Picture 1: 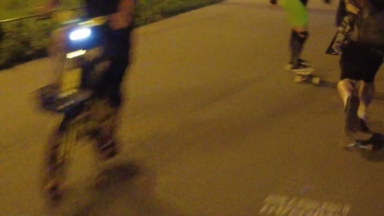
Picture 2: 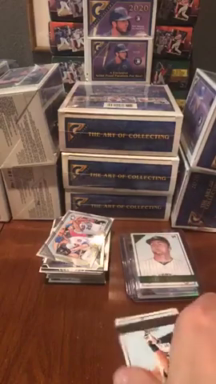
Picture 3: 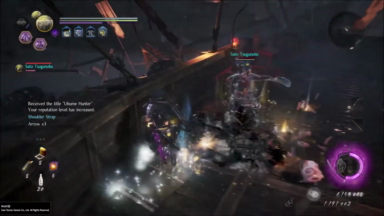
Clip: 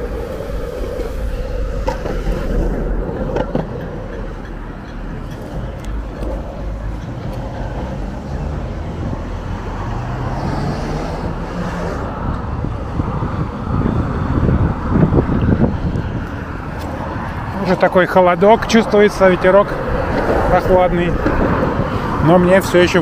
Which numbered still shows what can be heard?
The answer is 1